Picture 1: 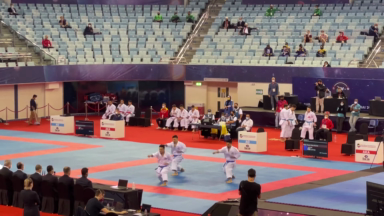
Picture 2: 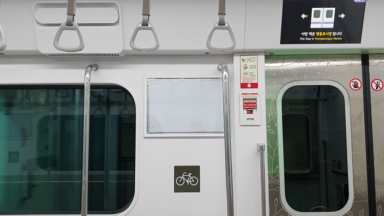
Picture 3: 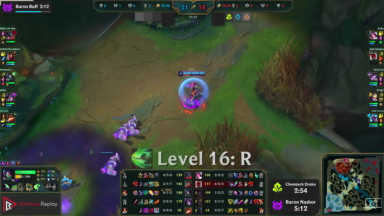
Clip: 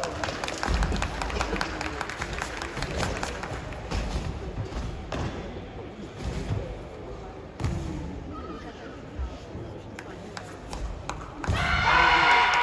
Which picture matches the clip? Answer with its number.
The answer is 1